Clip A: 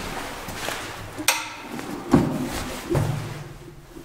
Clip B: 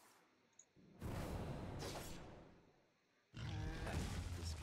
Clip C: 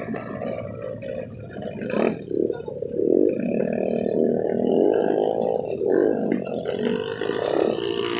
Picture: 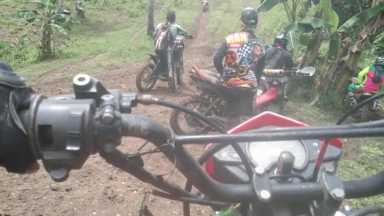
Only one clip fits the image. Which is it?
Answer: C